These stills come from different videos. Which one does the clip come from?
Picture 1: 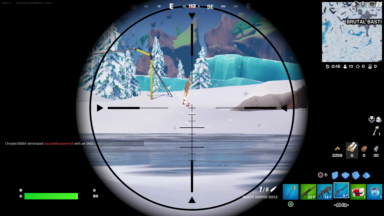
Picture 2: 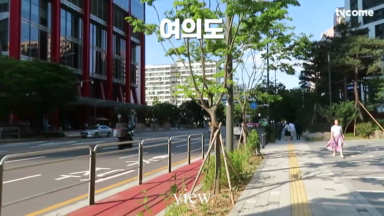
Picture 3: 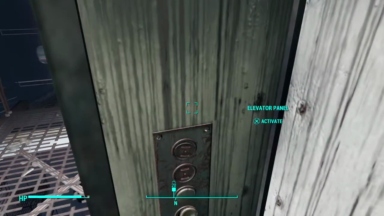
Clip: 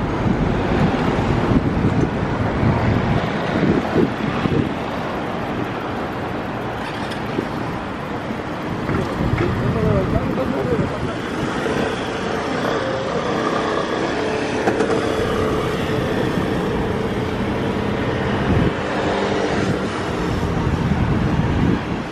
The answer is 2